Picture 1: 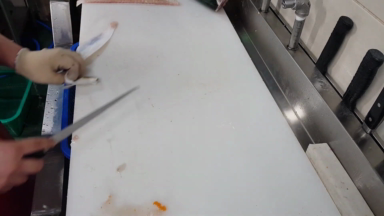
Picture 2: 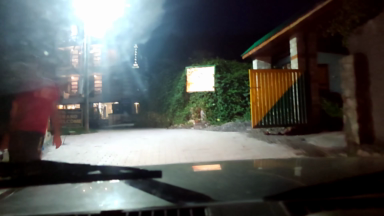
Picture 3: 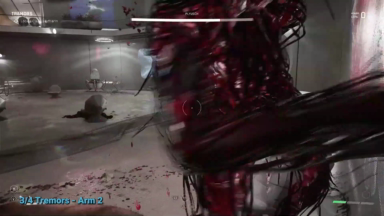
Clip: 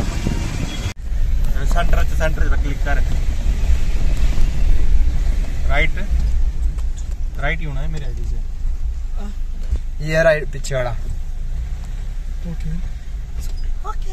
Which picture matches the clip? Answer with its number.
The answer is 2